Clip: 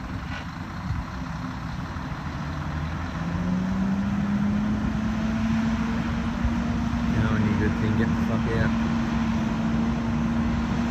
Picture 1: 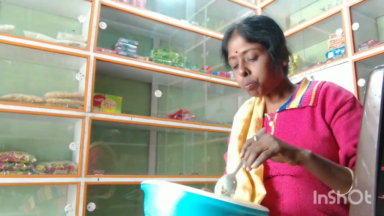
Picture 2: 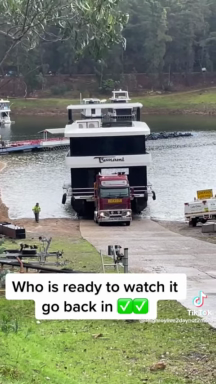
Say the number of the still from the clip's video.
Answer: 2